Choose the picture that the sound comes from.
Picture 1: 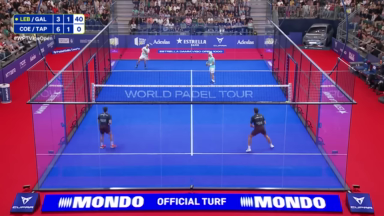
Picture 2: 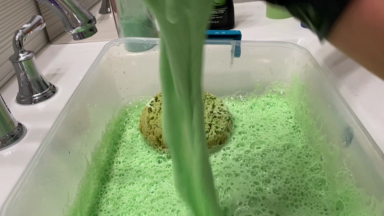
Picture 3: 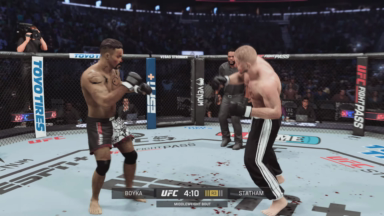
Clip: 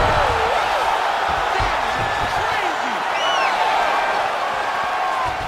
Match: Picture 3